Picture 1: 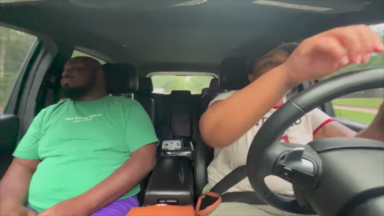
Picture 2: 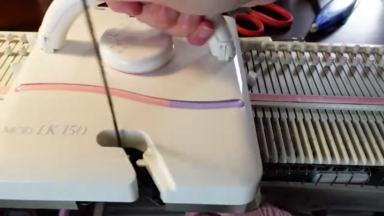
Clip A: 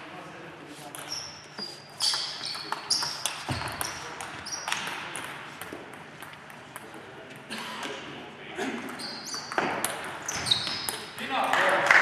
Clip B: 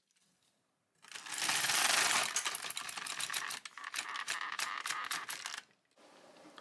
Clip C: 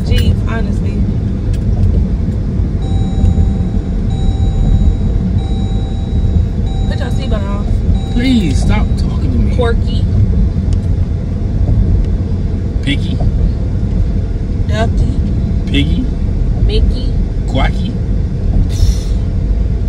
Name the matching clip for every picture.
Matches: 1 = C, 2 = B